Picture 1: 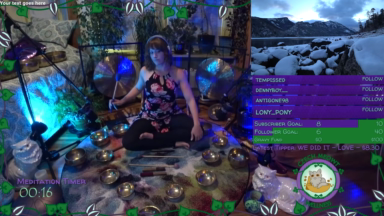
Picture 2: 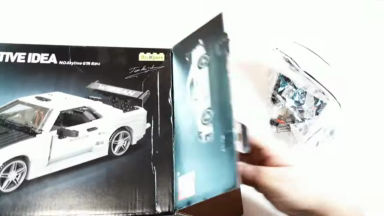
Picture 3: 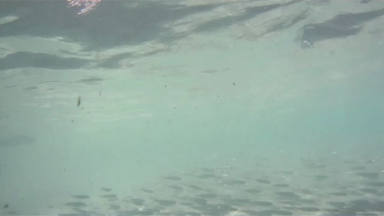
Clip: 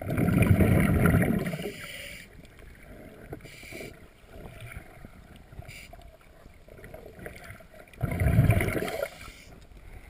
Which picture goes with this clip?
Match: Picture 3